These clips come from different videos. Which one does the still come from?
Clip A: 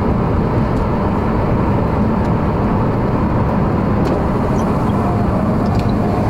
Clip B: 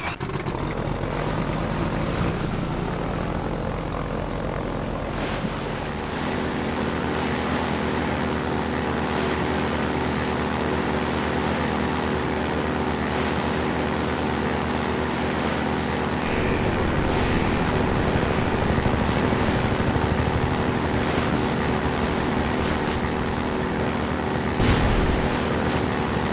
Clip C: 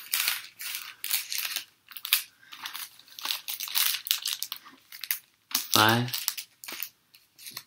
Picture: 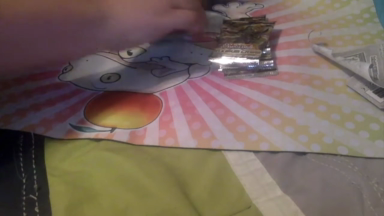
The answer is C